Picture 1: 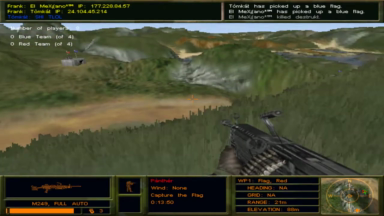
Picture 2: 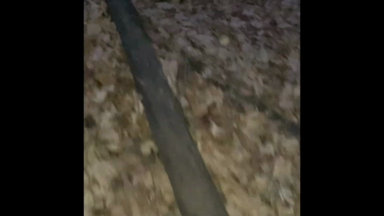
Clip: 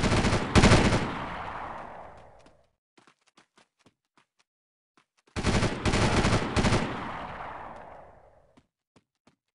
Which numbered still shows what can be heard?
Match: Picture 1